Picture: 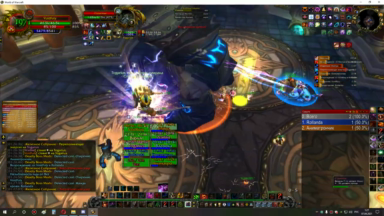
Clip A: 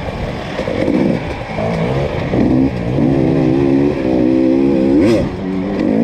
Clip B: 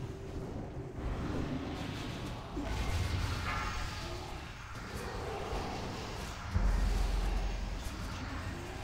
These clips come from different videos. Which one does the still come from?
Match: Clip B